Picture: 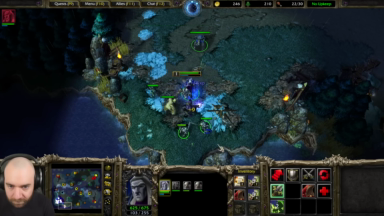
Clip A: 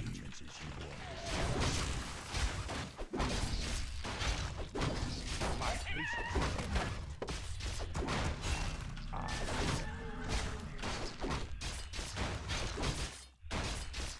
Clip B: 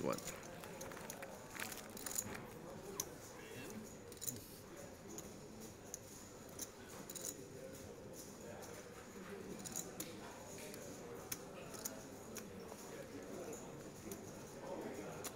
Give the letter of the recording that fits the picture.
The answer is A